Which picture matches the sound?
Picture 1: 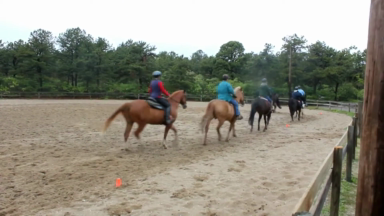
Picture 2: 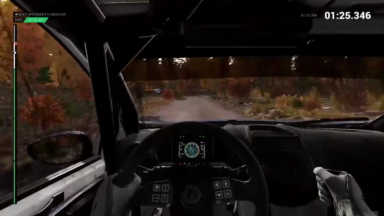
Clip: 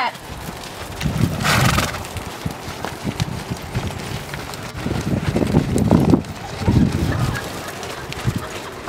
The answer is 1